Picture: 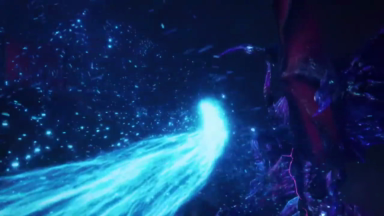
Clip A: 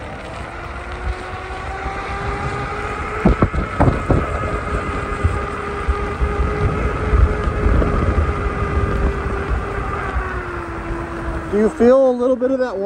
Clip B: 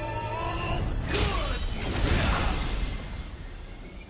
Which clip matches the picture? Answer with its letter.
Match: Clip B